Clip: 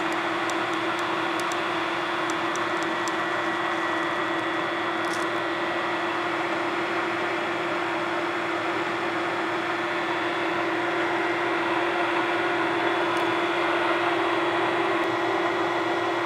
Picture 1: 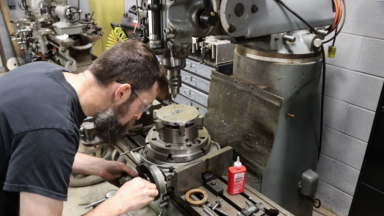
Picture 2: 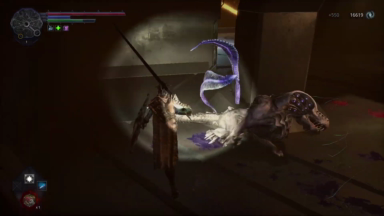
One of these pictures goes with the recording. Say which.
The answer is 1